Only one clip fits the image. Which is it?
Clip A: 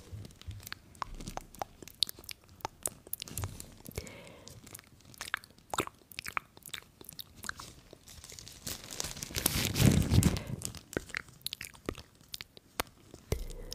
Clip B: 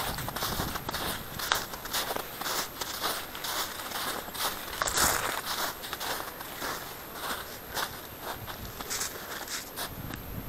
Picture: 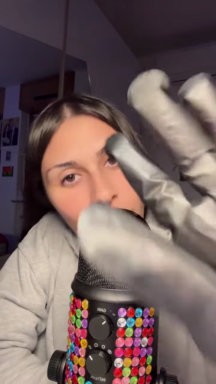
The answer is A